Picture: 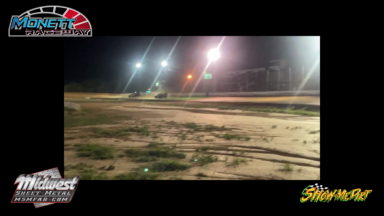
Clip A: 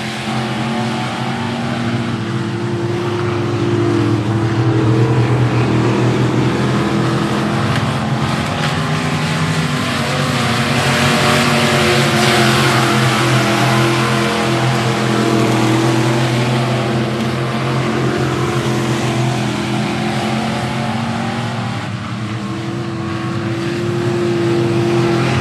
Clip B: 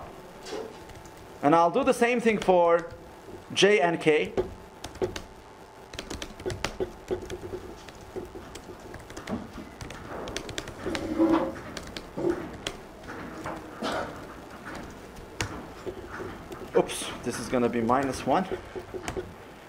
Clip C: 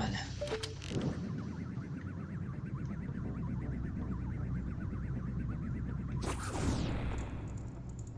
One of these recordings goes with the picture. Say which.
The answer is A